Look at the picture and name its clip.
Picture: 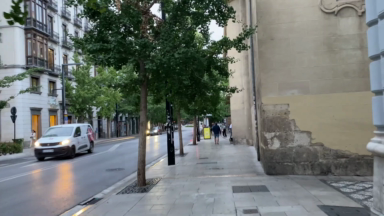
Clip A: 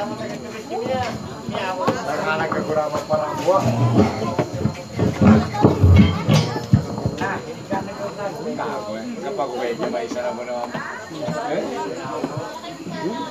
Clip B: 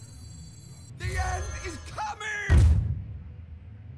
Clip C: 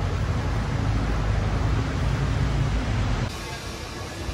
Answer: C